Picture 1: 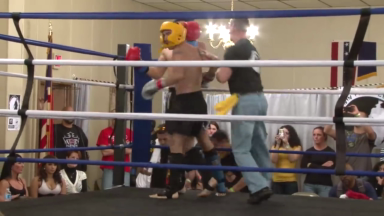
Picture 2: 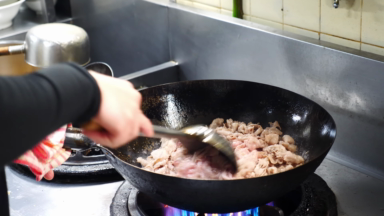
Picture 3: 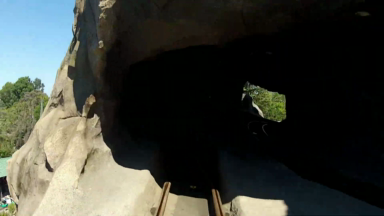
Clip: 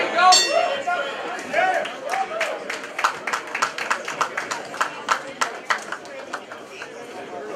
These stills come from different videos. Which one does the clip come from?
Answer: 1